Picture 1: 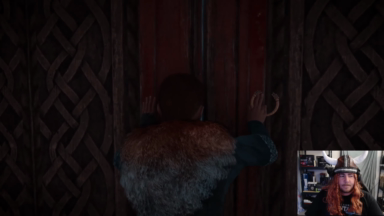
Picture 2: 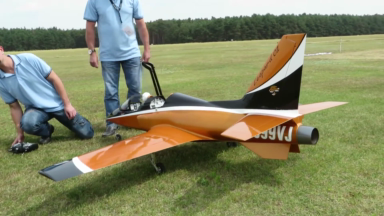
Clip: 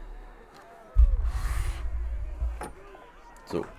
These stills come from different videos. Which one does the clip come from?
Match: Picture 1